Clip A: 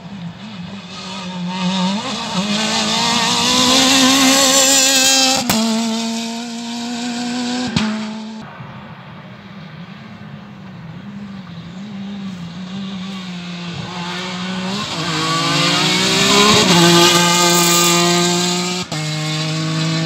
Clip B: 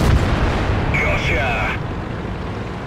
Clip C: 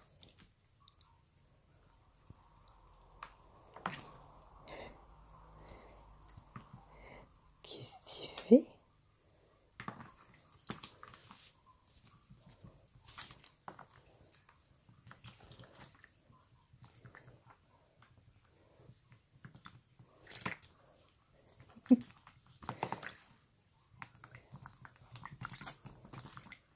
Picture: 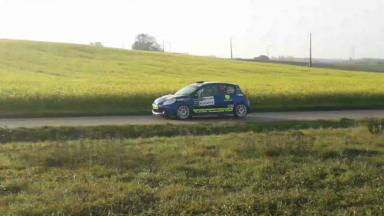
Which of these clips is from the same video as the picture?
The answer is A